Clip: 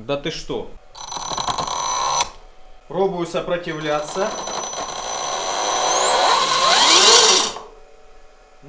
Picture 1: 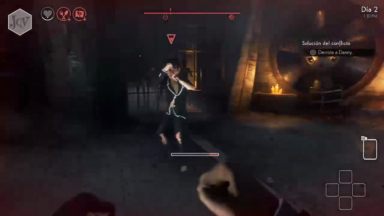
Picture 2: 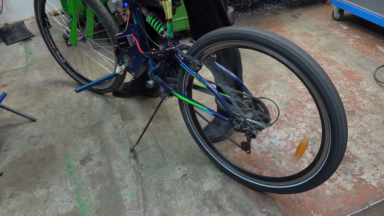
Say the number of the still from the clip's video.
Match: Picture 2